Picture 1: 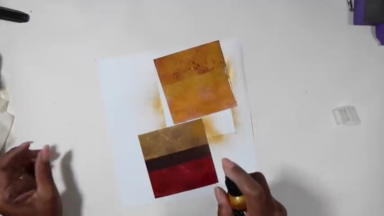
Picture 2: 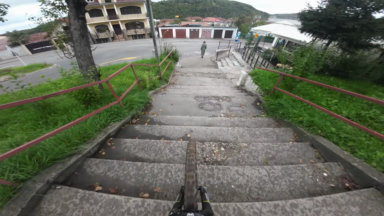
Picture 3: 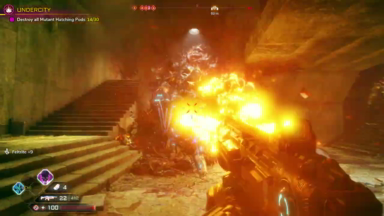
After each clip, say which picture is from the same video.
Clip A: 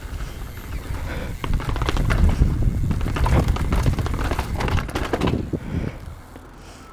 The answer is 2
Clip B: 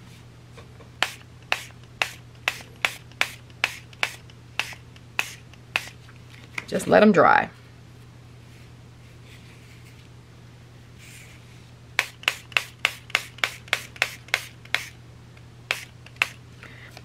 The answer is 1